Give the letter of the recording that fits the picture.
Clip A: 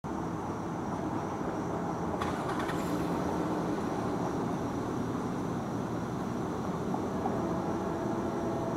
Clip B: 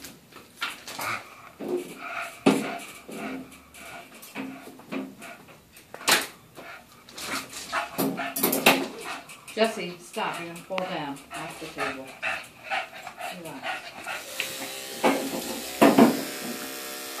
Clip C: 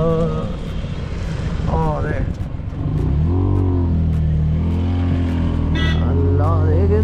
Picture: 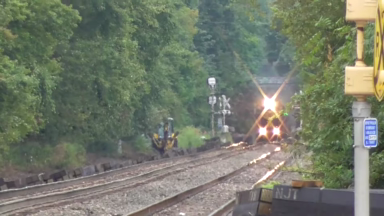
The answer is A